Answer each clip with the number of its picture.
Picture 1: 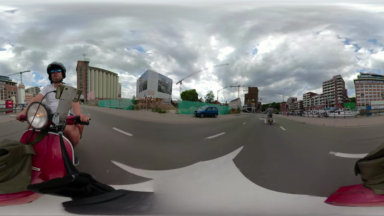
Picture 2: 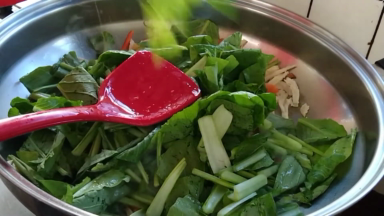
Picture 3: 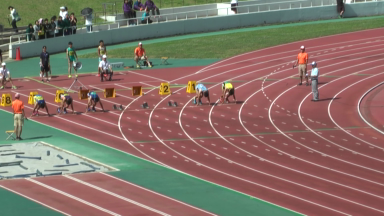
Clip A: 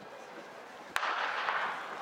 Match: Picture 3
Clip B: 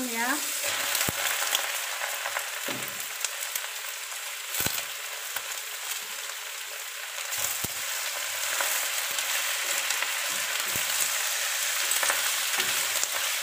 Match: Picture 2